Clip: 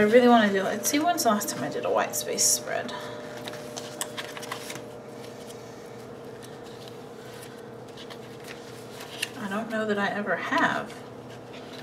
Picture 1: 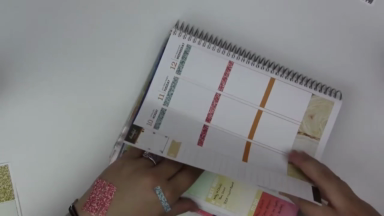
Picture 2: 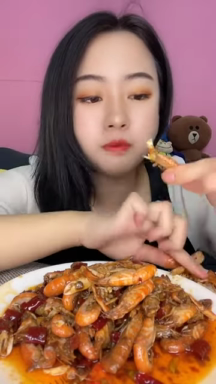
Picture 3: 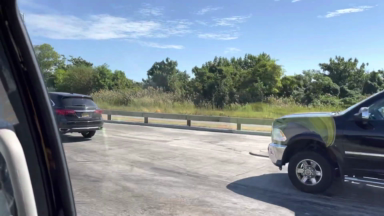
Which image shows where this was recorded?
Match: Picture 1